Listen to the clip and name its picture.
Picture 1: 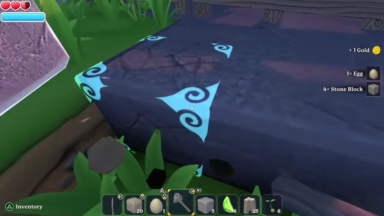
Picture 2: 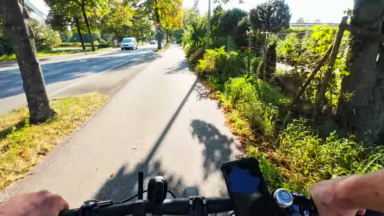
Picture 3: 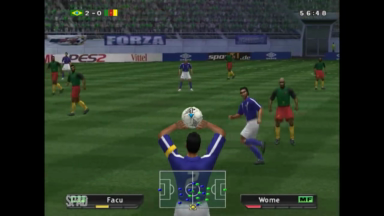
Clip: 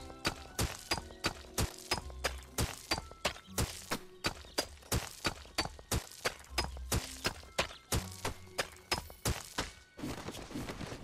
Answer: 1